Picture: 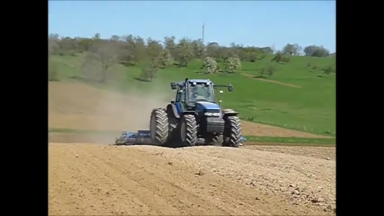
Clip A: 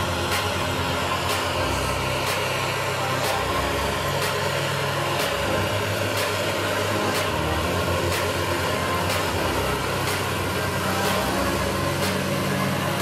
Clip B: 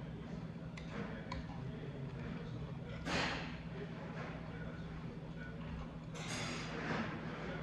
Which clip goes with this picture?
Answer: A